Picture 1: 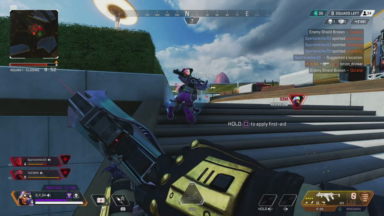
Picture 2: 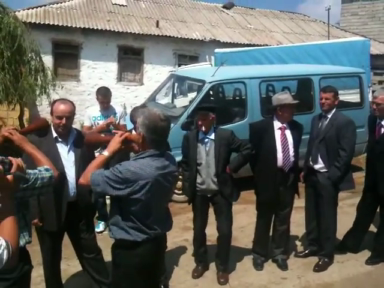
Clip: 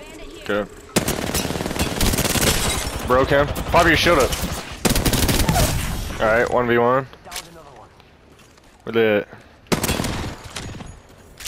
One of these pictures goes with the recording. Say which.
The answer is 1